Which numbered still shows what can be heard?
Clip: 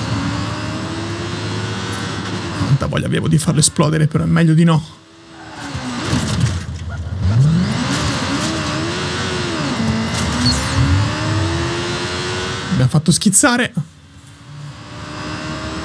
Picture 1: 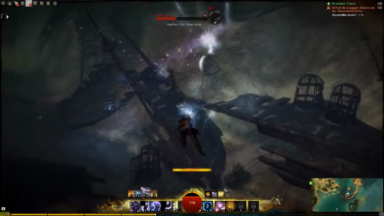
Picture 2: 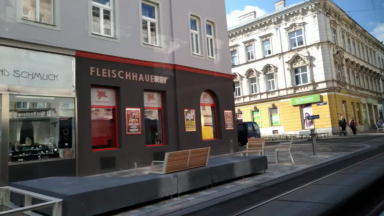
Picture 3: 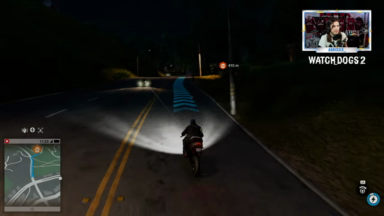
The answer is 3